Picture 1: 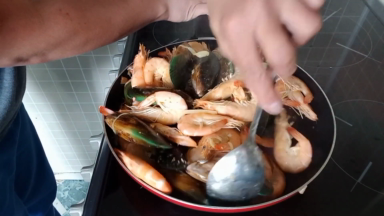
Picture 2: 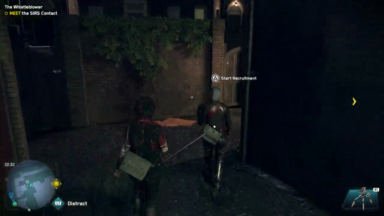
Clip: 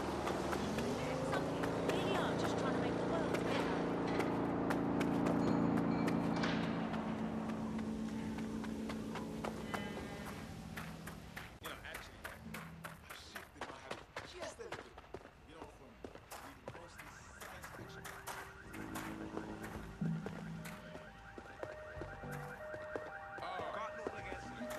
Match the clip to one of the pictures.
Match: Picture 2